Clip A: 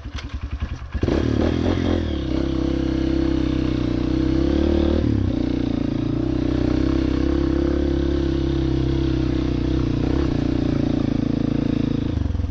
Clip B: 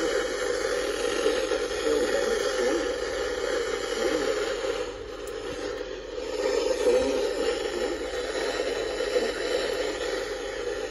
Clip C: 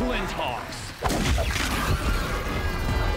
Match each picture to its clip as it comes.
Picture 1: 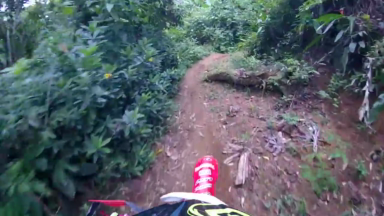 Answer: A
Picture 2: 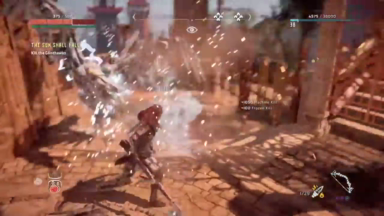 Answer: C